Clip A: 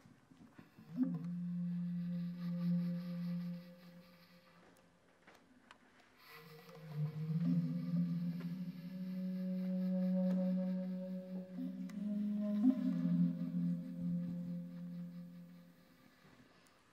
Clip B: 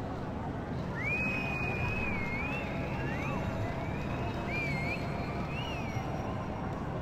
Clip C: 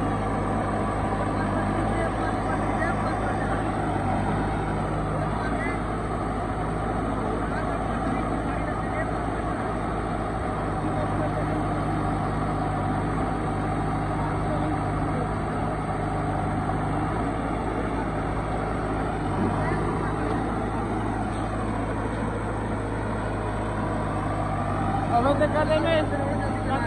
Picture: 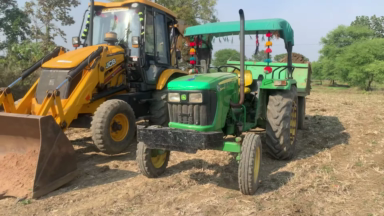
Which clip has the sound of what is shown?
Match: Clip C